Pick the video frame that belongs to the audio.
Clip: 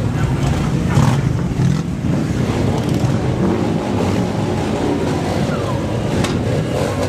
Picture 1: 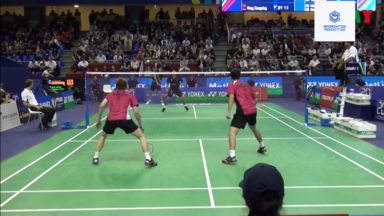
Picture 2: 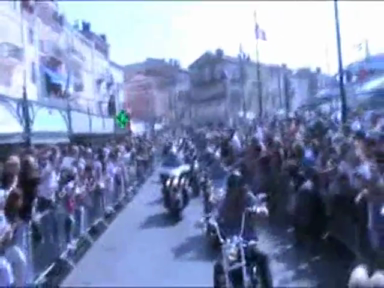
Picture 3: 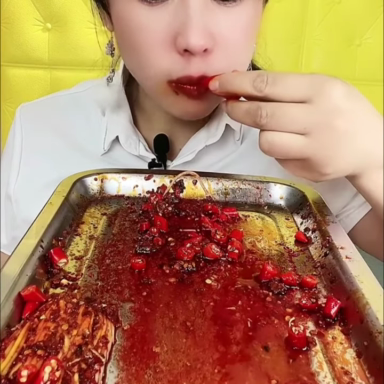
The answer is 2